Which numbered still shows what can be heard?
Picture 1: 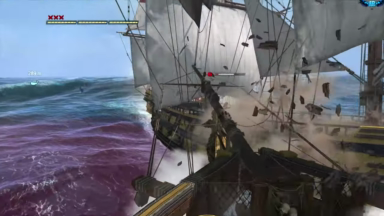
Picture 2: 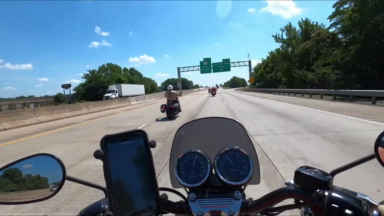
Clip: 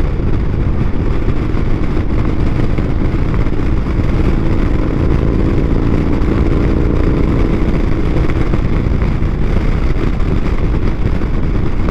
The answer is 2